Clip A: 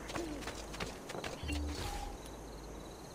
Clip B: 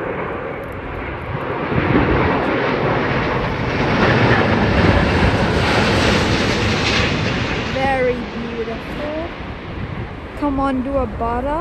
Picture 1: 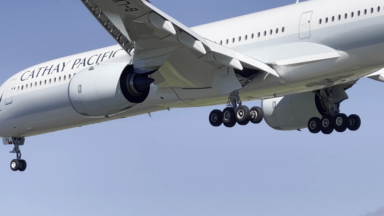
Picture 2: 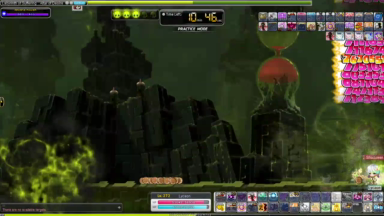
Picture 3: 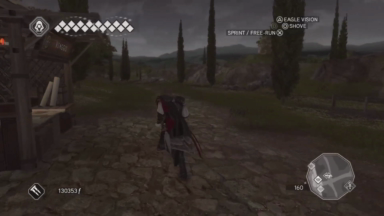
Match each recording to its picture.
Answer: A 3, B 1